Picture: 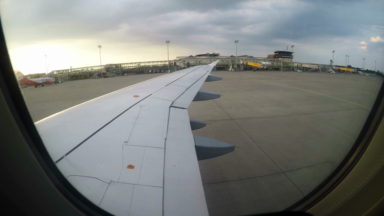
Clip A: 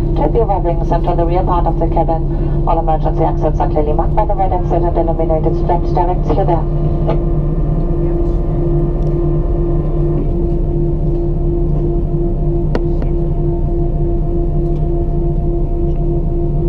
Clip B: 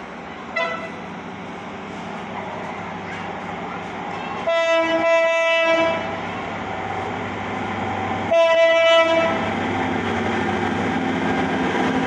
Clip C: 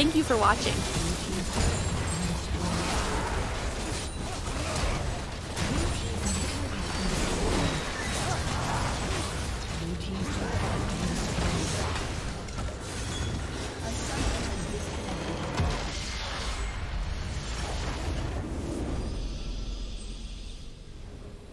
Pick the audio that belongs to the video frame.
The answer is A